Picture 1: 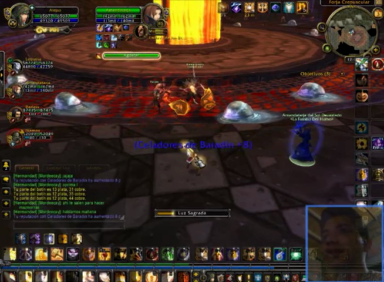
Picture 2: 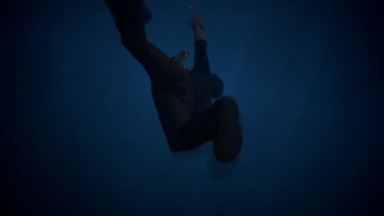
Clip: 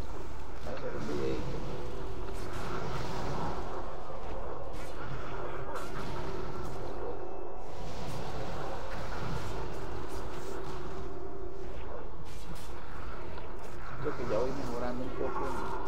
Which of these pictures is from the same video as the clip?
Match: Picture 1